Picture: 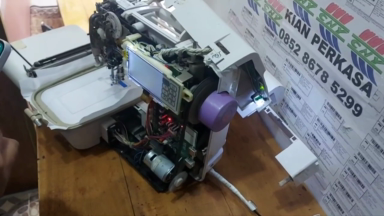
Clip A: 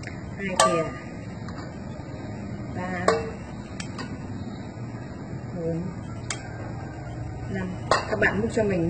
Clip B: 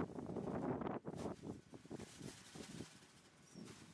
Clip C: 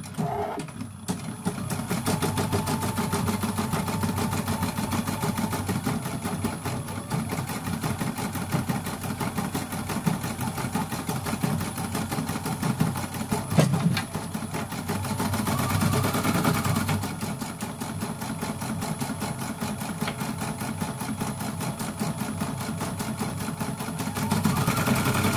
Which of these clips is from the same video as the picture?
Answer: C